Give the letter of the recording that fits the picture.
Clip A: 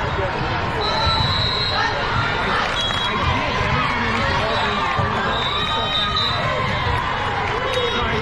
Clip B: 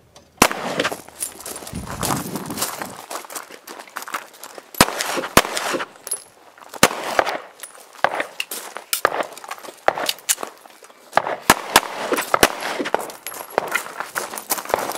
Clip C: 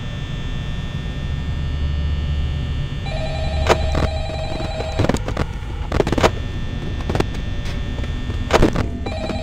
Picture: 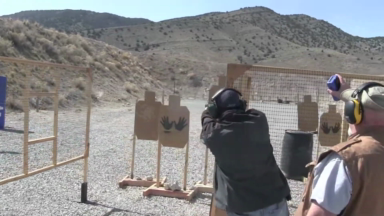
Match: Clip B